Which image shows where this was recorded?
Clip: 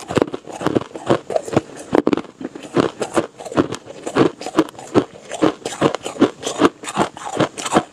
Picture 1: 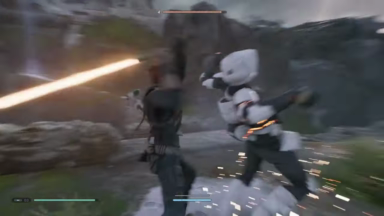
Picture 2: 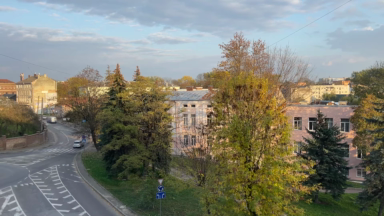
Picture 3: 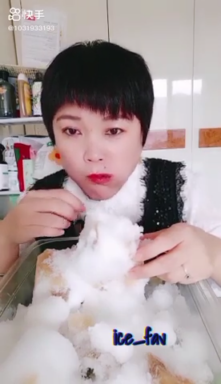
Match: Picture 3